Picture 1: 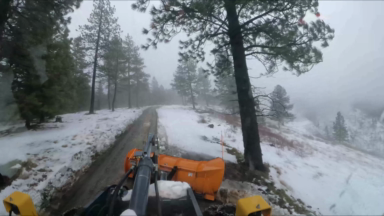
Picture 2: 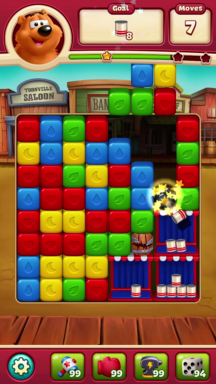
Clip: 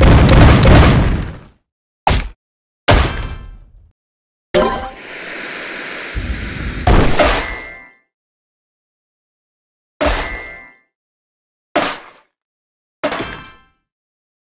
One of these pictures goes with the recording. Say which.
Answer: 2